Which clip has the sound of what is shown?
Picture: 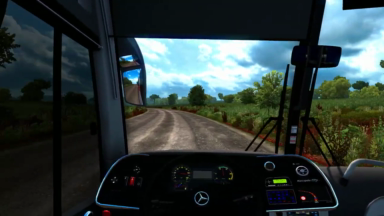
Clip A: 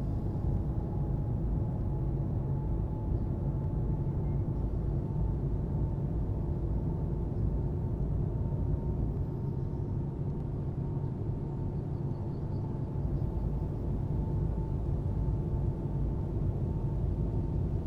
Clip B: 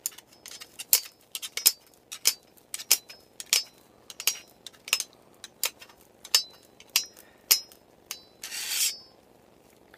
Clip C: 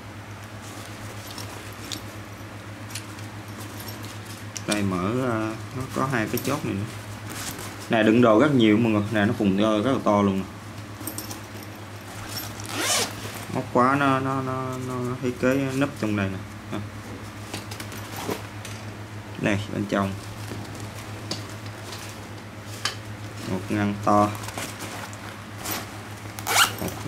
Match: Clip A